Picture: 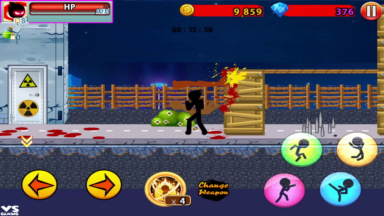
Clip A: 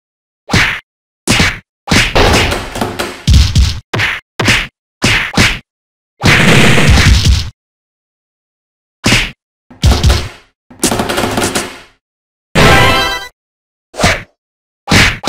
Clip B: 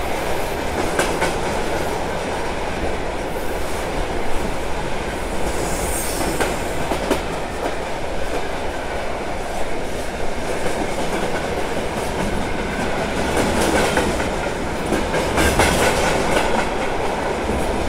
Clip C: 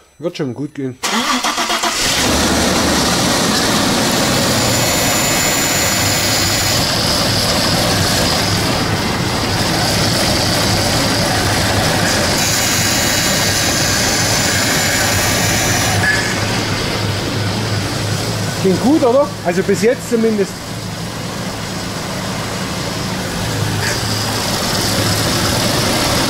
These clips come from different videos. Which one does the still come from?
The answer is A